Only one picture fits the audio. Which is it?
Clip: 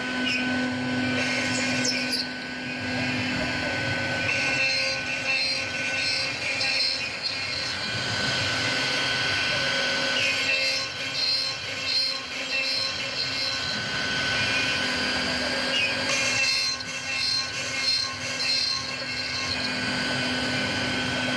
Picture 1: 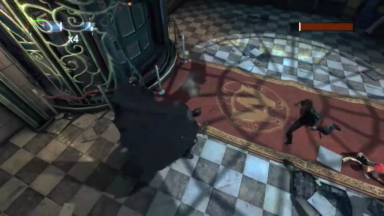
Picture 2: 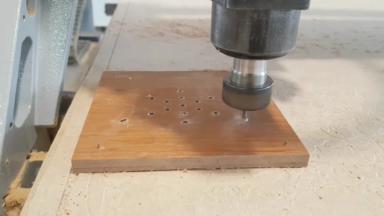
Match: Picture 2